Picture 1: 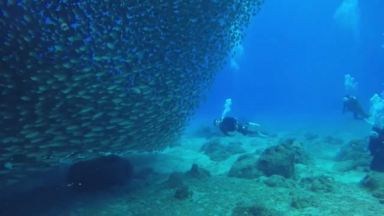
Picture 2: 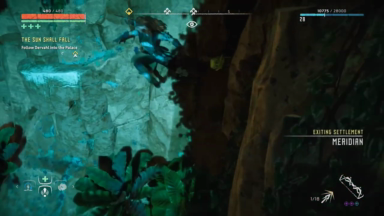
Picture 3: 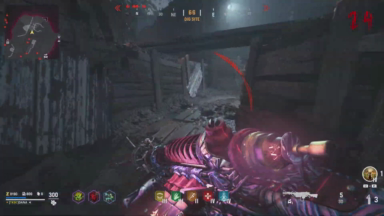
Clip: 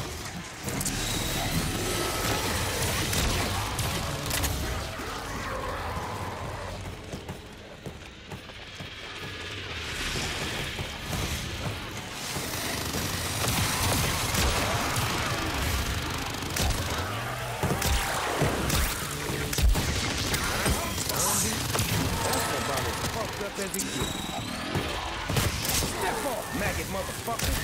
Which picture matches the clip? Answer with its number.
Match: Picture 3